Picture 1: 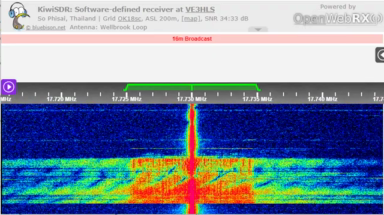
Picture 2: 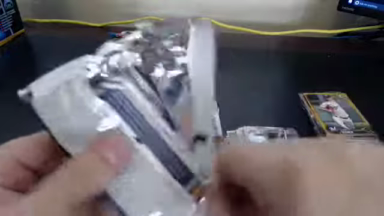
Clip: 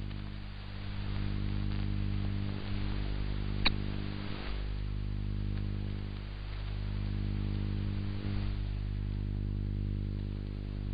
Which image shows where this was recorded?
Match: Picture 1